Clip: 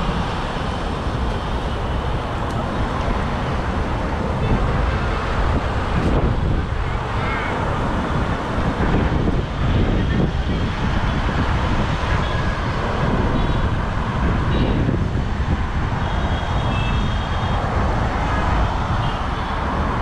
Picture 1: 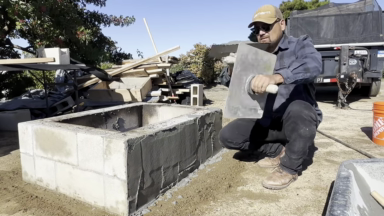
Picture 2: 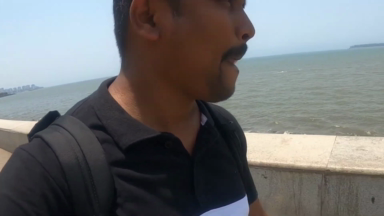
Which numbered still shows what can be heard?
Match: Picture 2